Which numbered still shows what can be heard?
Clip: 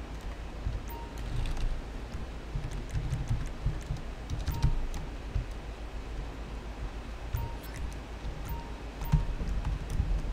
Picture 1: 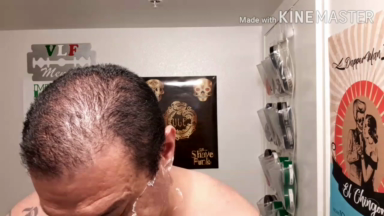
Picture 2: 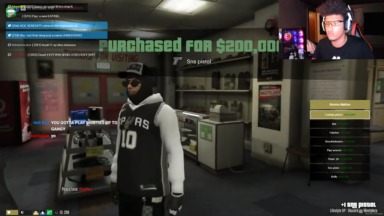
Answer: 2